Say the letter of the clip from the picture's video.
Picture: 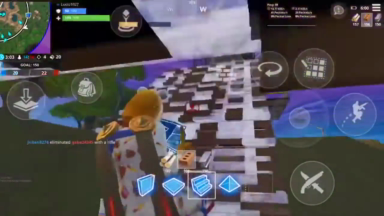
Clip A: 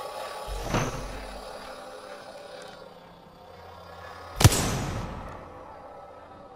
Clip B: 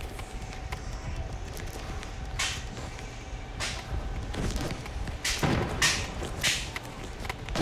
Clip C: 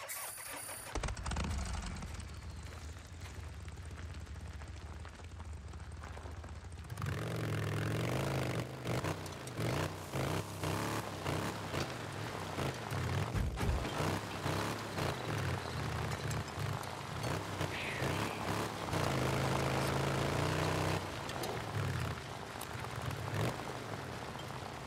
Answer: B